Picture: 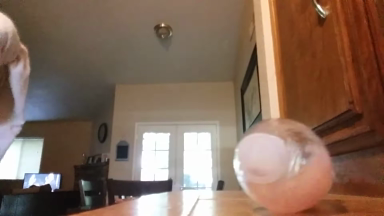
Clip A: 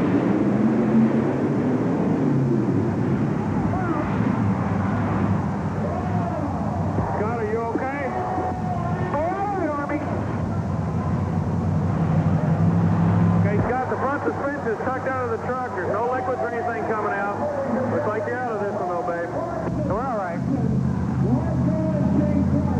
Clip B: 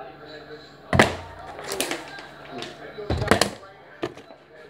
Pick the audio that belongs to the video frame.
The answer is B